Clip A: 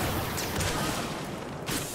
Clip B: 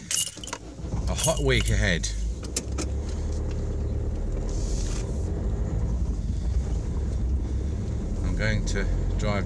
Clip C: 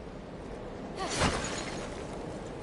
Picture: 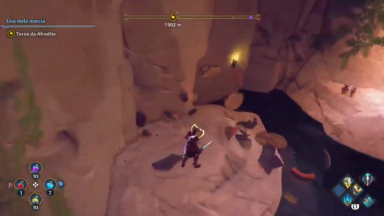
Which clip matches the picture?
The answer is C